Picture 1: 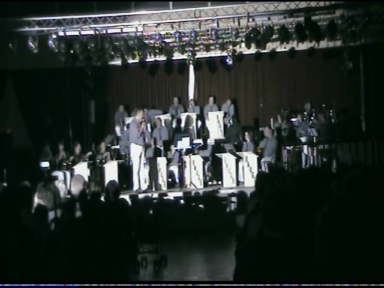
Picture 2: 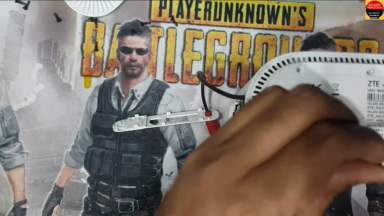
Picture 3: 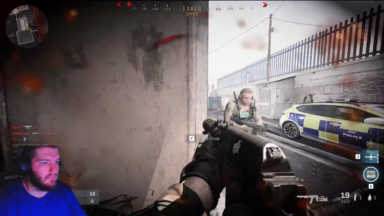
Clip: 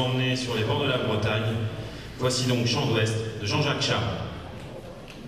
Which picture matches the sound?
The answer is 1